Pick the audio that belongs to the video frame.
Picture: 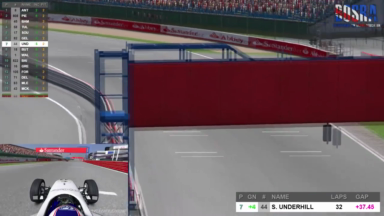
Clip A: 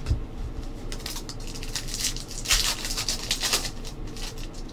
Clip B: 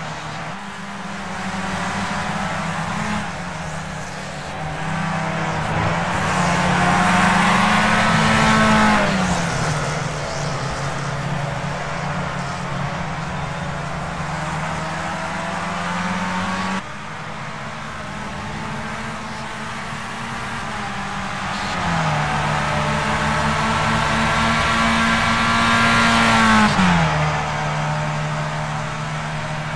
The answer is B